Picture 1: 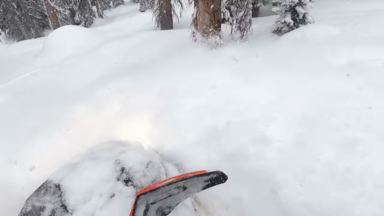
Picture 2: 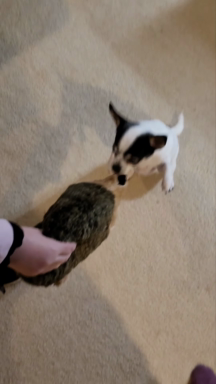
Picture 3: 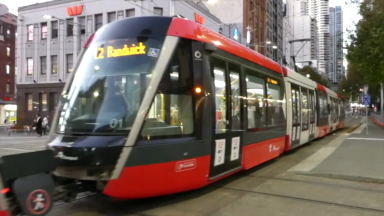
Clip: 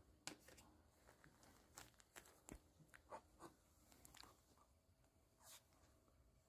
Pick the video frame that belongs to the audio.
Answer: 2